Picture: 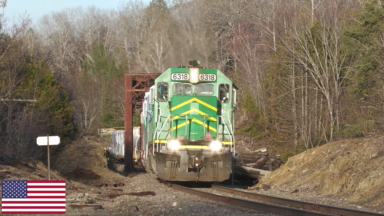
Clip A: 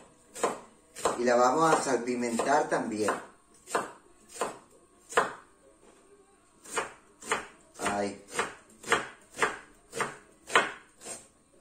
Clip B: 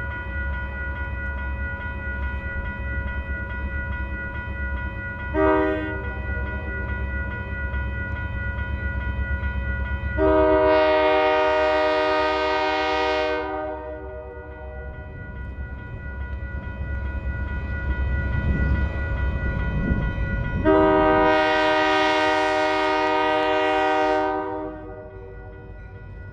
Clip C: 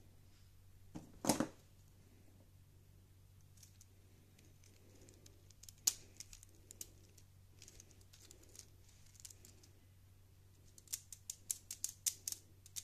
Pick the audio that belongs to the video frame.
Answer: B